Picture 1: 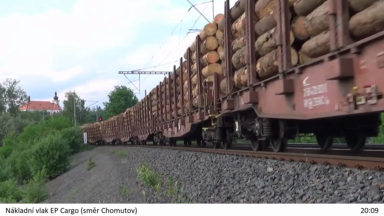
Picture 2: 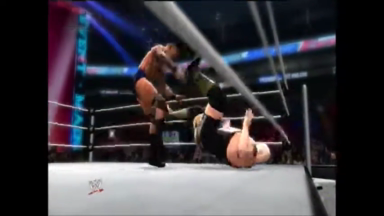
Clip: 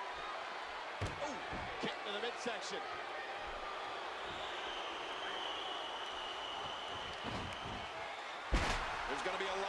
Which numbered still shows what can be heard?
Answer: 2